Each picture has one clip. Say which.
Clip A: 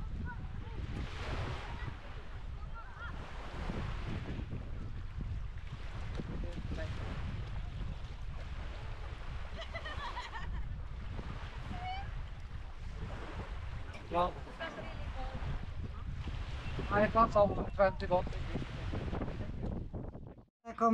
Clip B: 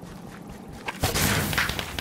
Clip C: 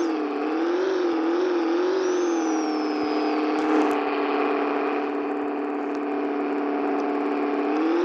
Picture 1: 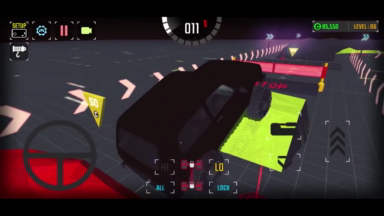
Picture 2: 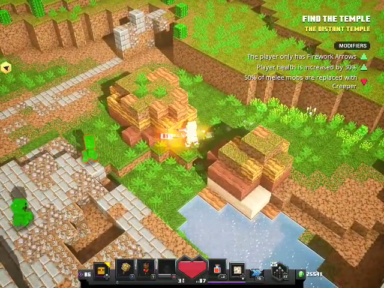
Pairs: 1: C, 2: B